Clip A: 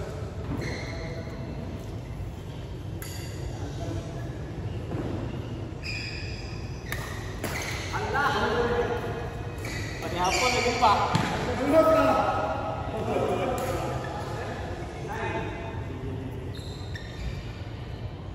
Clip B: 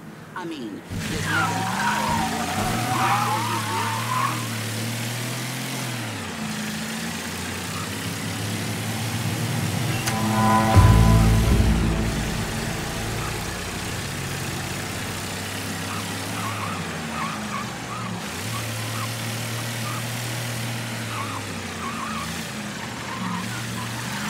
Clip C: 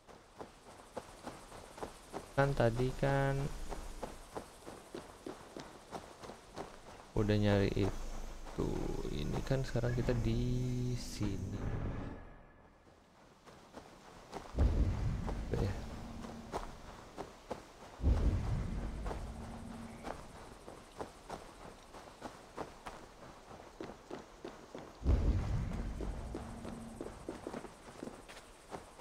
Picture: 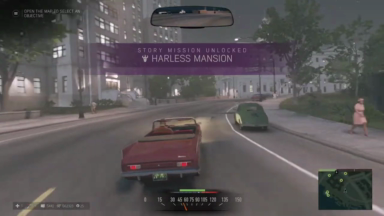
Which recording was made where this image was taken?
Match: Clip B